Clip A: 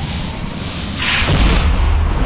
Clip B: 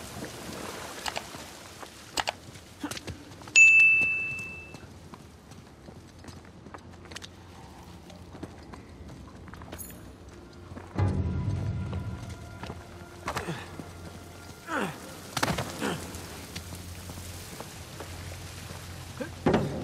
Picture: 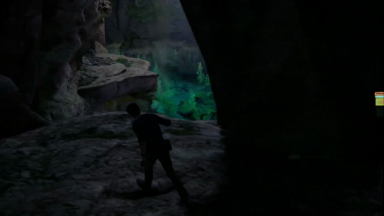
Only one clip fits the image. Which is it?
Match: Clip B